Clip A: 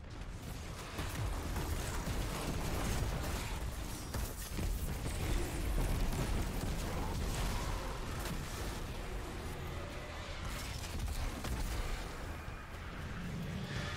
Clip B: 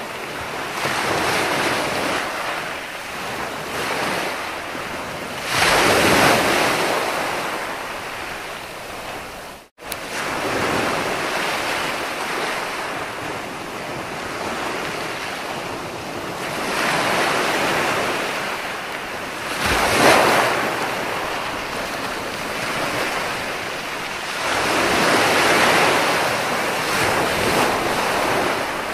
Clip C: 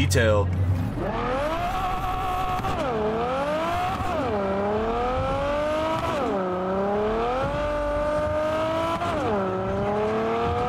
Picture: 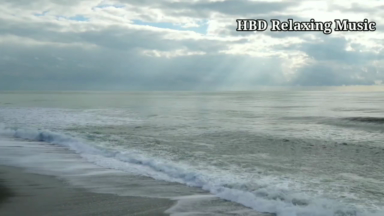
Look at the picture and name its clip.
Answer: B